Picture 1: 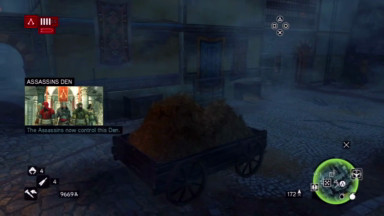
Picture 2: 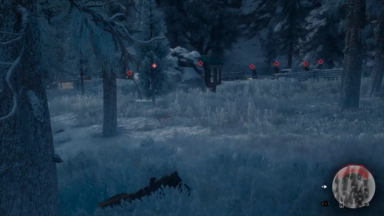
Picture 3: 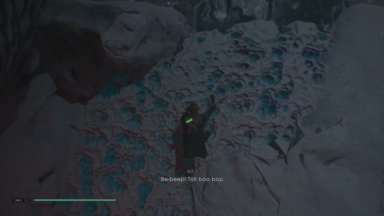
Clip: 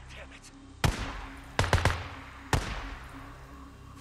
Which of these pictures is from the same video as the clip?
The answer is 2